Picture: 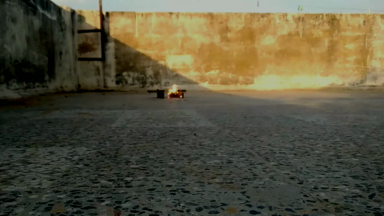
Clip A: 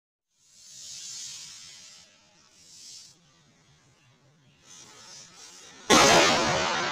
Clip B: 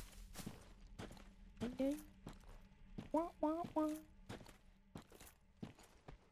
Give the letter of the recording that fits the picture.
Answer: A